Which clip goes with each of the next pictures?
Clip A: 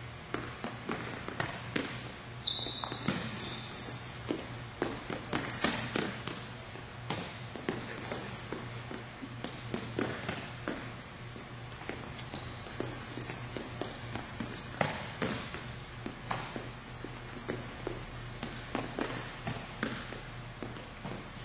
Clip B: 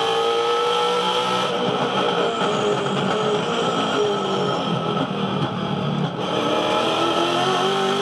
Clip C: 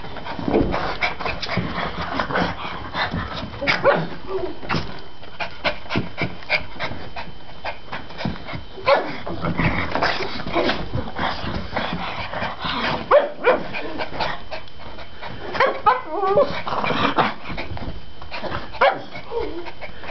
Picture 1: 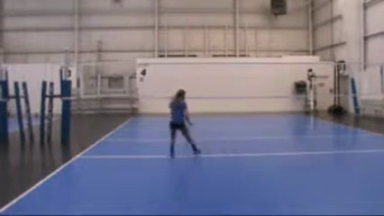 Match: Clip A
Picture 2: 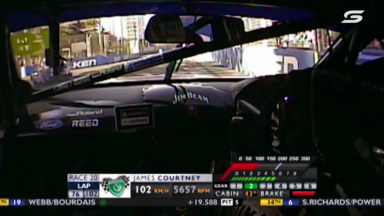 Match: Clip B